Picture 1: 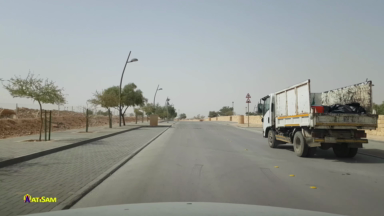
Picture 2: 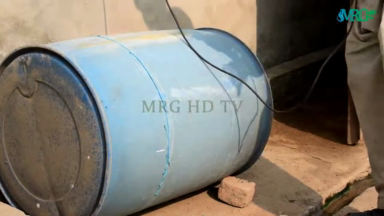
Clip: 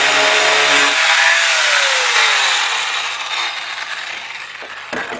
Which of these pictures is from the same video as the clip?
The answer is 2